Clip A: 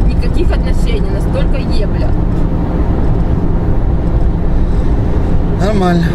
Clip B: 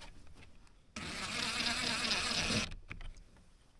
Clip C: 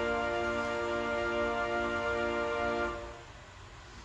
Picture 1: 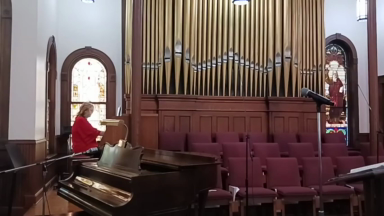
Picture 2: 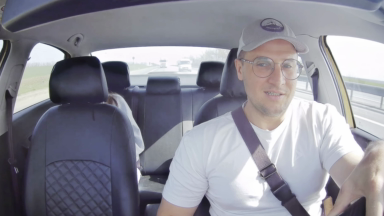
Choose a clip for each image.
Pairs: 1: C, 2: A